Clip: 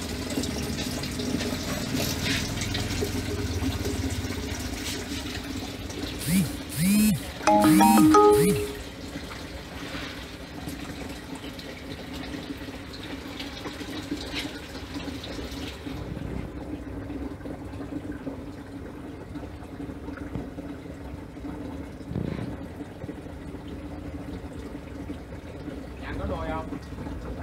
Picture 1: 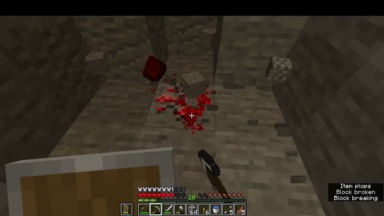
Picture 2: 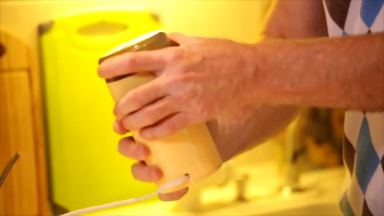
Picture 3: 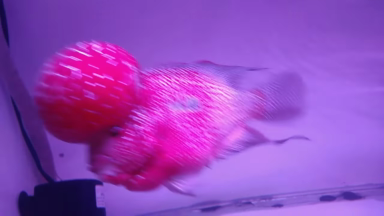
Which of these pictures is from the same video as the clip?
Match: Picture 3